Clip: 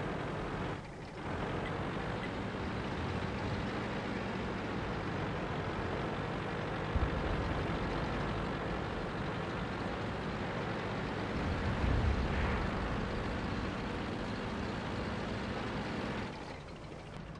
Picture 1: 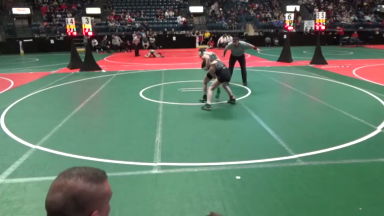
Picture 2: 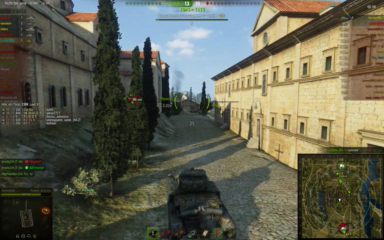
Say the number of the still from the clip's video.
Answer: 2